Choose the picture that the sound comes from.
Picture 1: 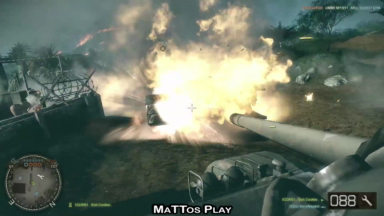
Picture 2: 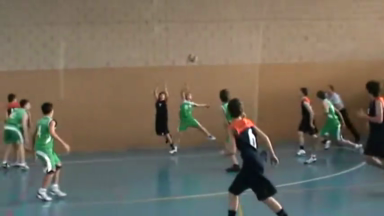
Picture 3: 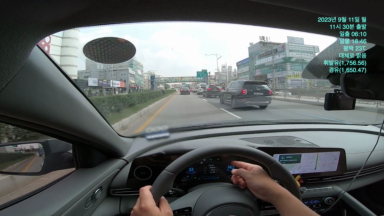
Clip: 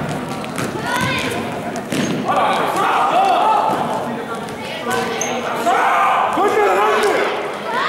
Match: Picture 2